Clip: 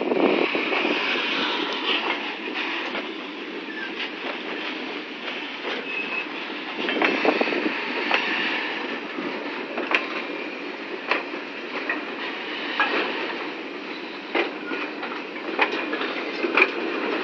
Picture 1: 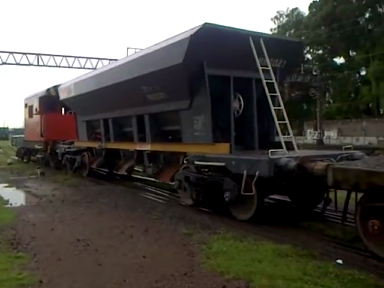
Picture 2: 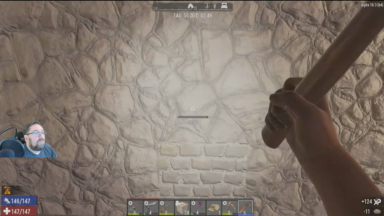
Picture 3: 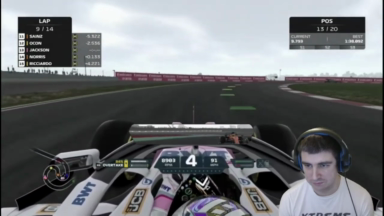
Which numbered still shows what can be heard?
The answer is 1